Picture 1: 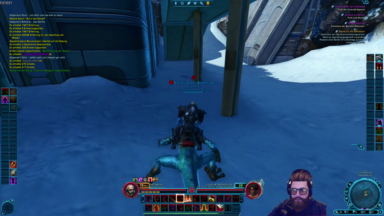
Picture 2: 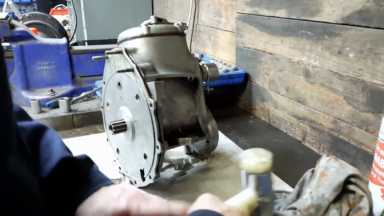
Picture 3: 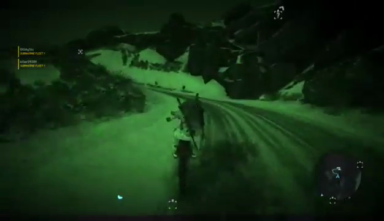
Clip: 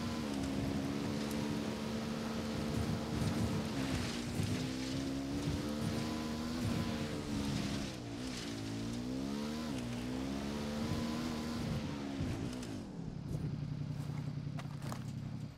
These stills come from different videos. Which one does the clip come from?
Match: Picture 3